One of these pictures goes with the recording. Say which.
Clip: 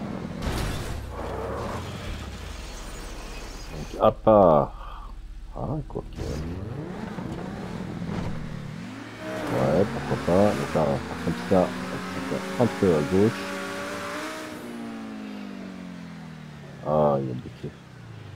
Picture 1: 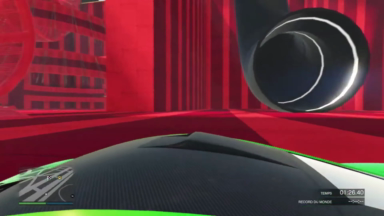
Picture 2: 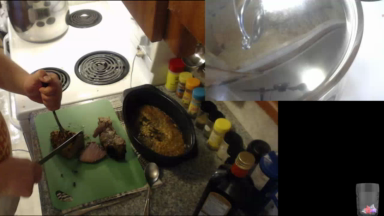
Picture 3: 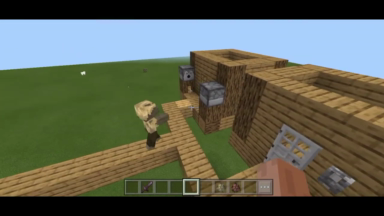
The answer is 1